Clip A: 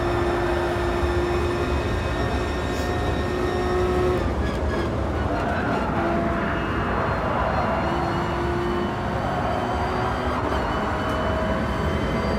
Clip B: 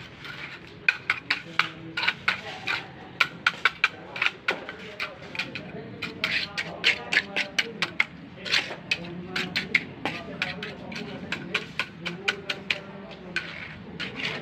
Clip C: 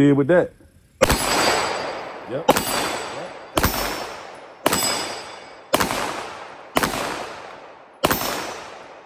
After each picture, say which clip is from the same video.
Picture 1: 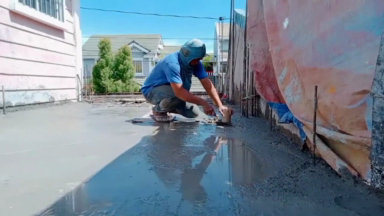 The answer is B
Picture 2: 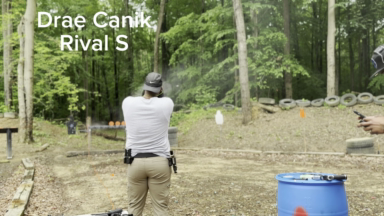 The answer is C